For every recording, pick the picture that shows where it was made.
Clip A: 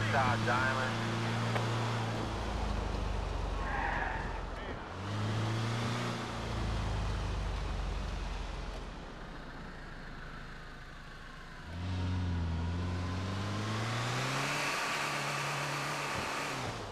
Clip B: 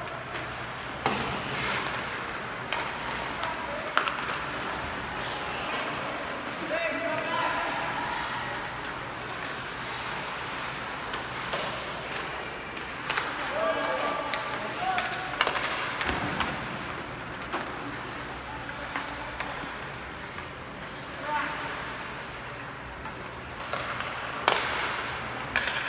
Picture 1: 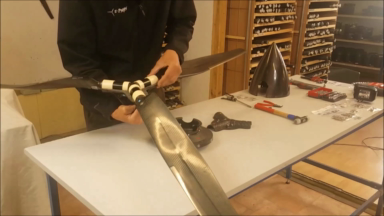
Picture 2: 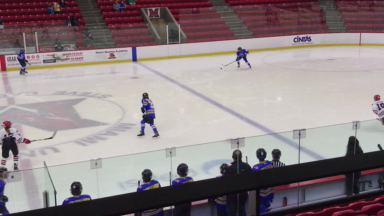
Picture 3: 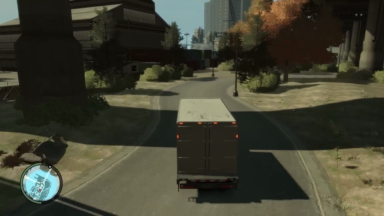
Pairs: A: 3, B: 2